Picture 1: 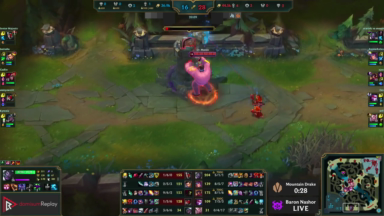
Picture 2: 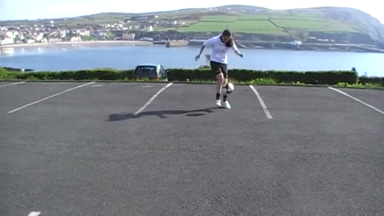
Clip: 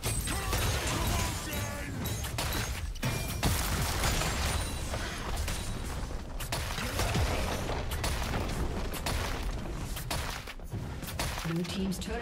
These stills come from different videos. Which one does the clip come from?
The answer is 1